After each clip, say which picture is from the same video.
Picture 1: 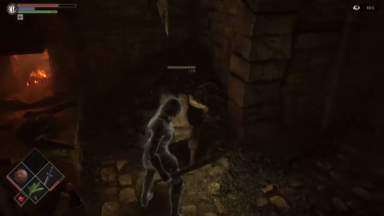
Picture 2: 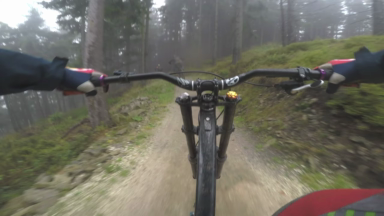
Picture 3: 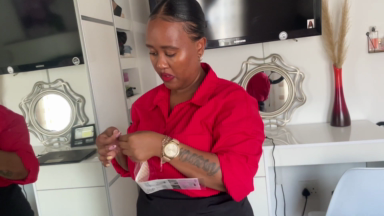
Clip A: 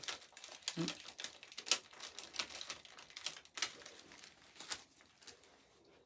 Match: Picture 3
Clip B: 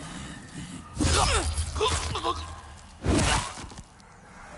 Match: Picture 1